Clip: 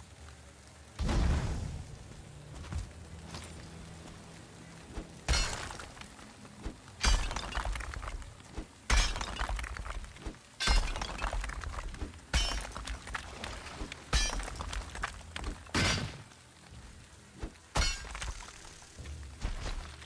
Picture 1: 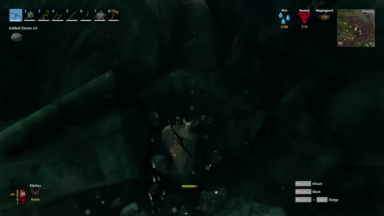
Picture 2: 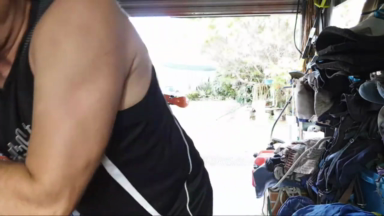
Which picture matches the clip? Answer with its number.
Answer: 1